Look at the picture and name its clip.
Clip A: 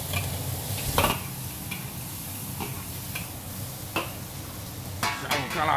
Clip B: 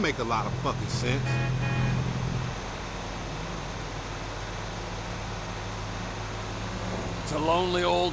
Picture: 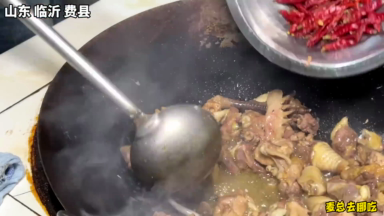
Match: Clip A